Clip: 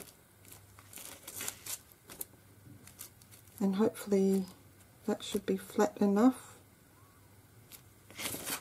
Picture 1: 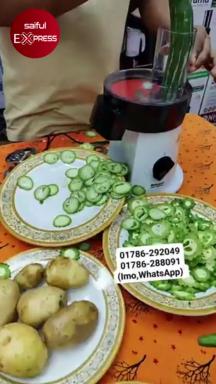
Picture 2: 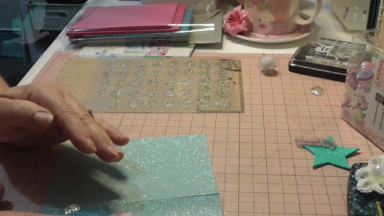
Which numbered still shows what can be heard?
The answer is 2